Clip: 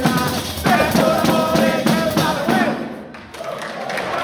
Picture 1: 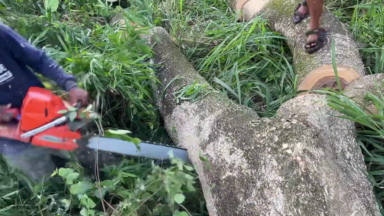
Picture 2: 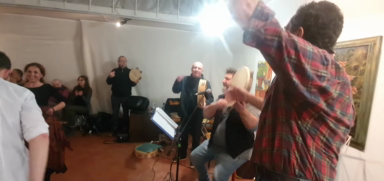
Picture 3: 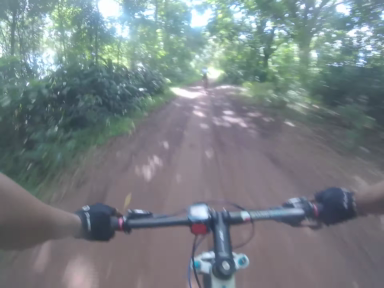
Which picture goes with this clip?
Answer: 2